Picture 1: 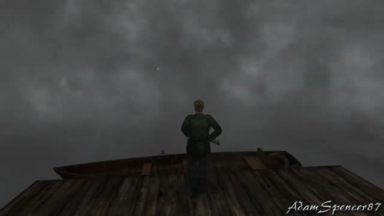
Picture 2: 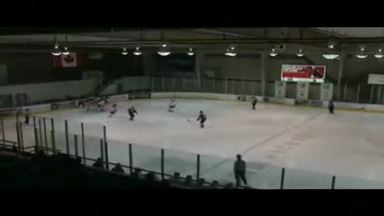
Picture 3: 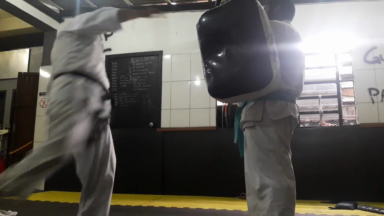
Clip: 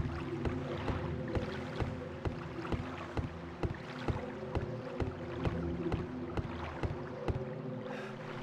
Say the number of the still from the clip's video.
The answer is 1